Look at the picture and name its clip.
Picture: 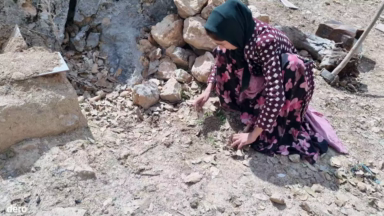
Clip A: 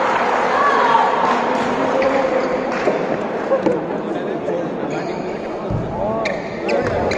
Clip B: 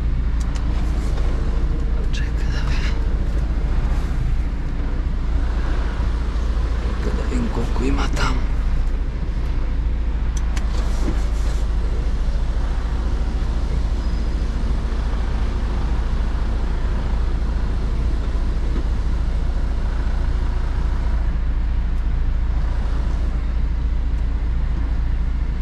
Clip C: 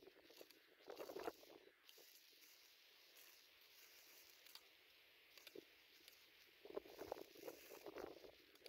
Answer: C